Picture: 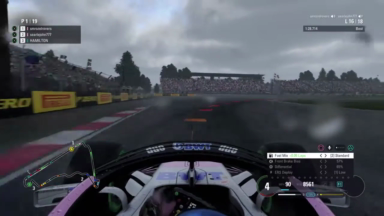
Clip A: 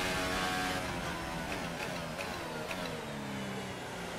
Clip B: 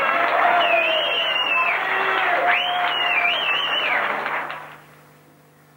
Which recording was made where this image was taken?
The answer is A